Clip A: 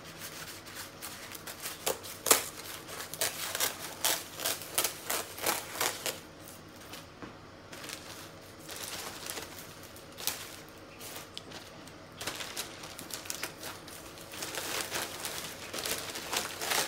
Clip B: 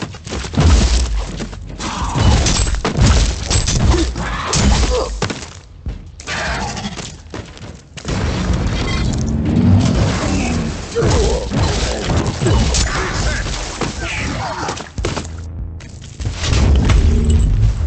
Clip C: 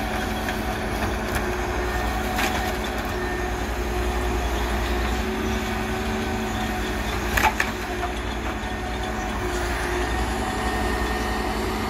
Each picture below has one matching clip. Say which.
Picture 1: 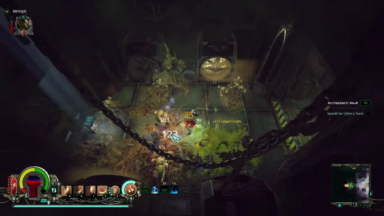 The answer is B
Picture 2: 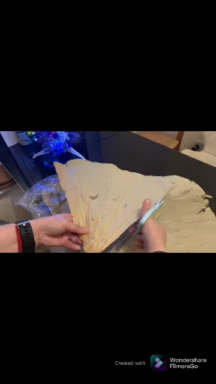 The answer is A